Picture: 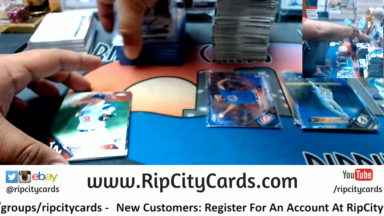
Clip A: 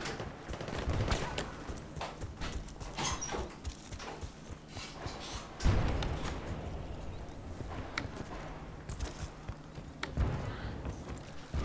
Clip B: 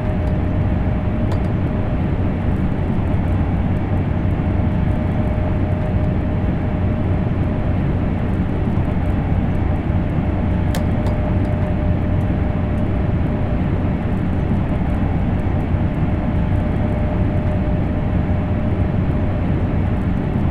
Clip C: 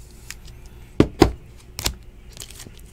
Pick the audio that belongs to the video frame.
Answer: C